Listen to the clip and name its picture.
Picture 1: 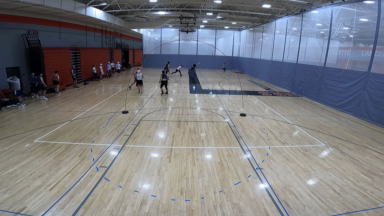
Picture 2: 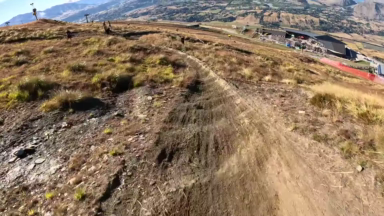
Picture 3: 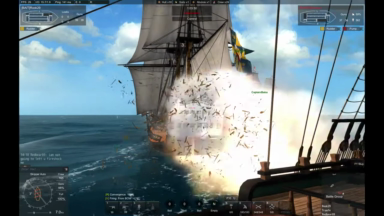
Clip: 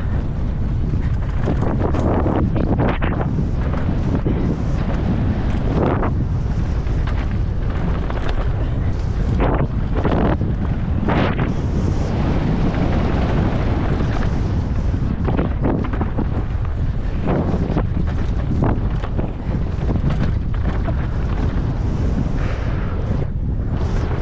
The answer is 2